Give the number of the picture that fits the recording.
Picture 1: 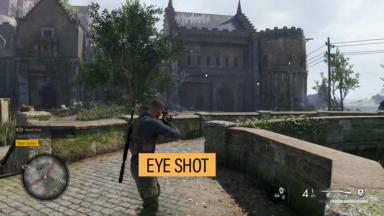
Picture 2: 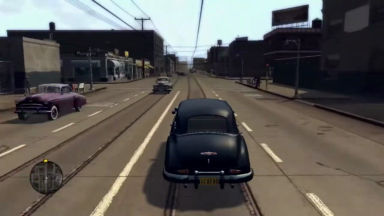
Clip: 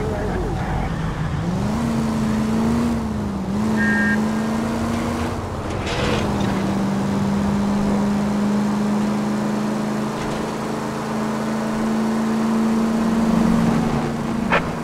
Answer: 2